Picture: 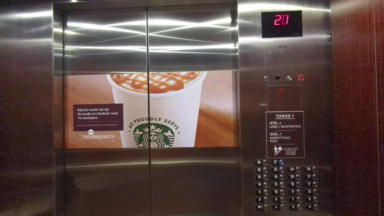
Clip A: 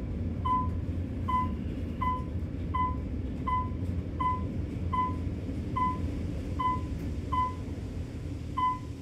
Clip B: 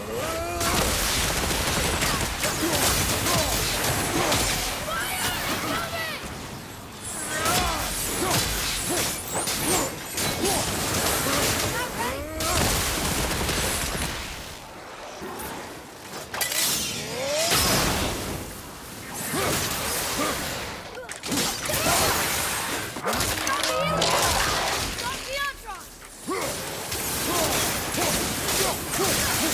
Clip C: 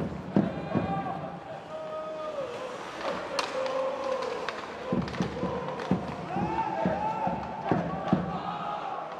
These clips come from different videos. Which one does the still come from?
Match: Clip A